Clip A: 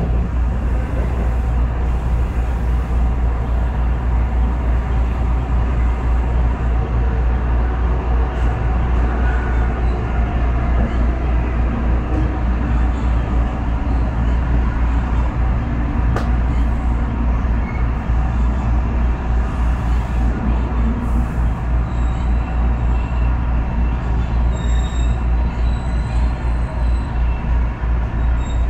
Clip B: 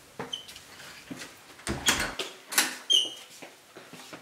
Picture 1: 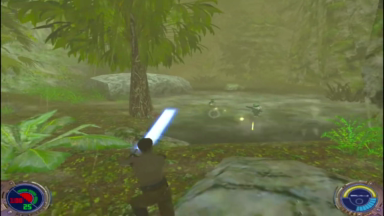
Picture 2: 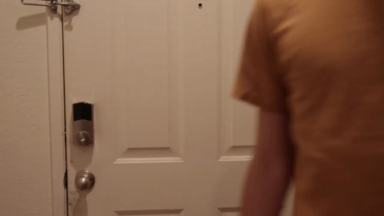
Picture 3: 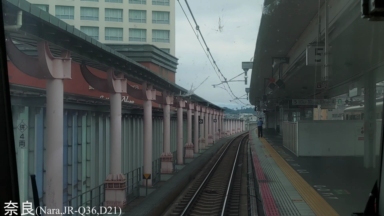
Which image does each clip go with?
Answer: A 3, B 2